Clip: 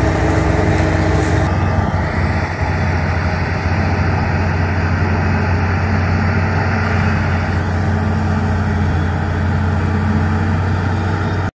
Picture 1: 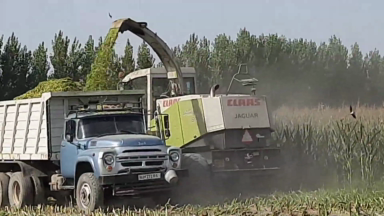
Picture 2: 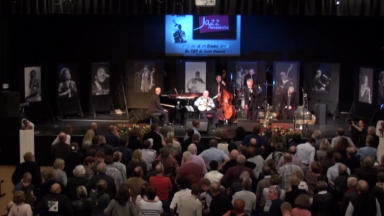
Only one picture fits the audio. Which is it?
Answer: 1